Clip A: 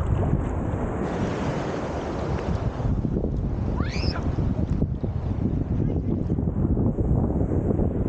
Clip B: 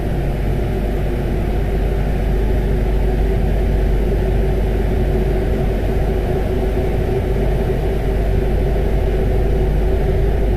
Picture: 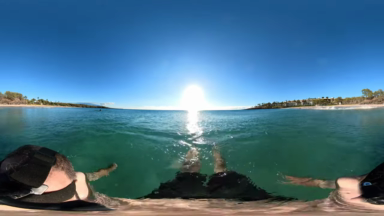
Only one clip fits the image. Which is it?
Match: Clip A